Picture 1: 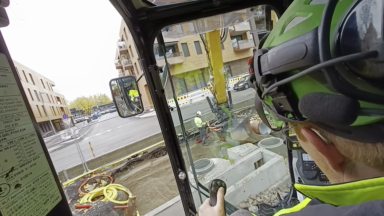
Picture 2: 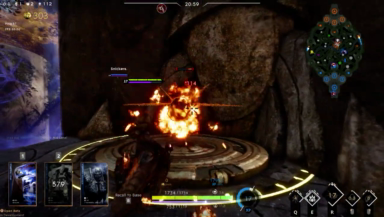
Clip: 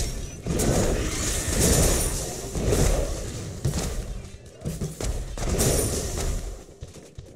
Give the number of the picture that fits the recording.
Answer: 2